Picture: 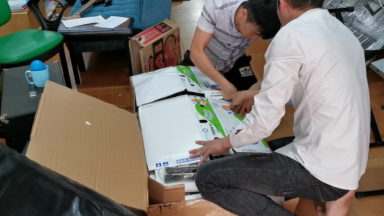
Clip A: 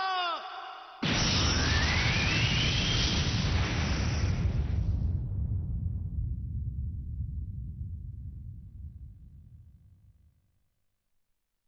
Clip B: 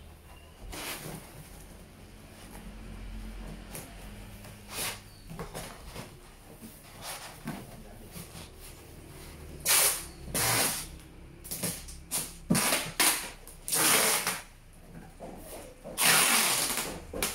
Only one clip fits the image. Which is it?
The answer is B